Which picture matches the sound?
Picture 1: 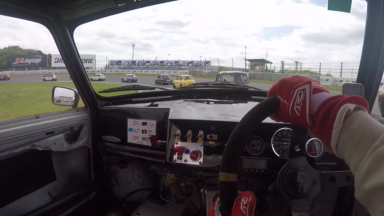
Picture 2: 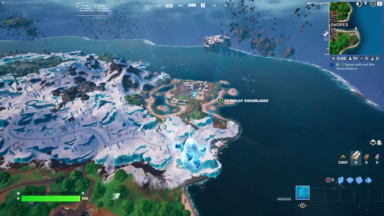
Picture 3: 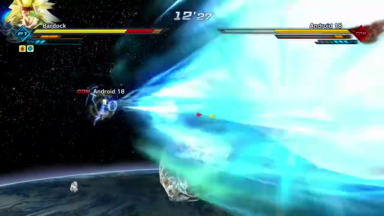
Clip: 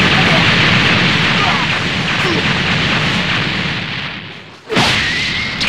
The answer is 3